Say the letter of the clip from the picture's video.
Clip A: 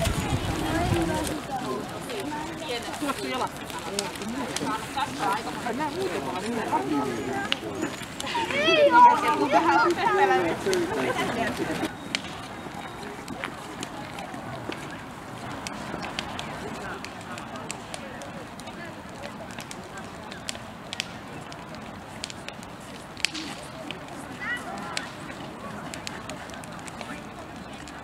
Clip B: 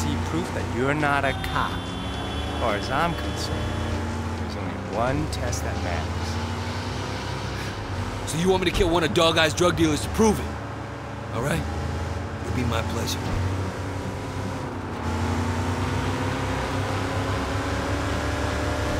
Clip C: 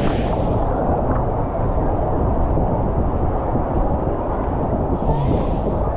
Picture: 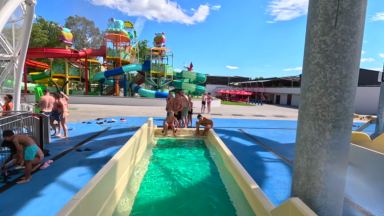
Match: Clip C